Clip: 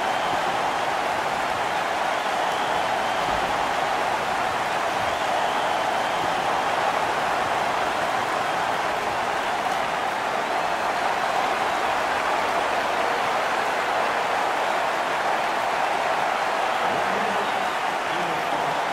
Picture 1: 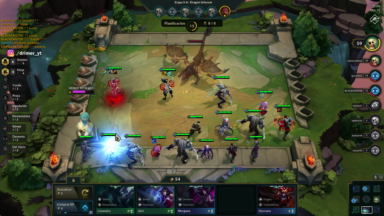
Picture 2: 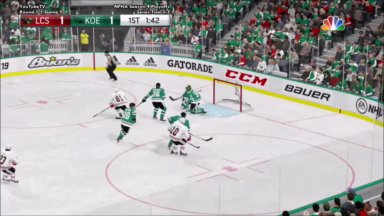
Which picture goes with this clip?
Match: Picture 2